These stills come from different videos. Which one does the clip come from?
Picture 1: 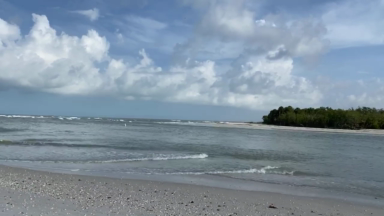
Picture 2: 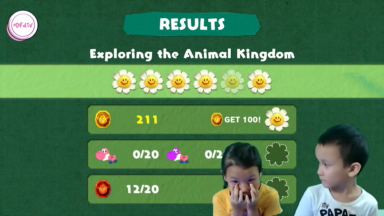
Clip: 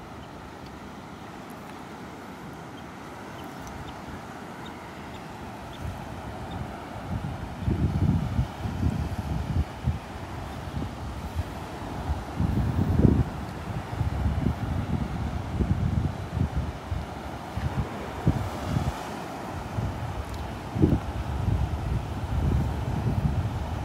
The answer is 1